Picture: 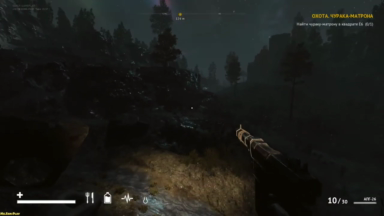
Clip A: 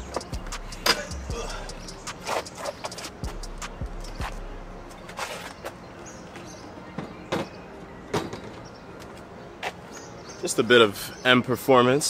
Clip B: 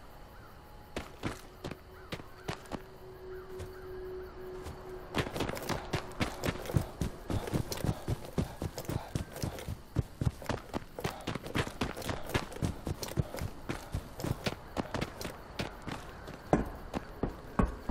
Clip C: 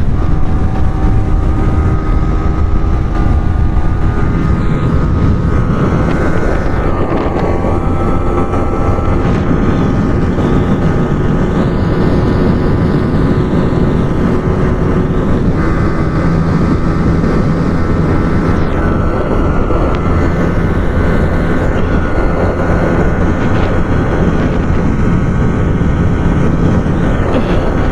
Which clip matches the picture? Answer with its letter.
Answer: B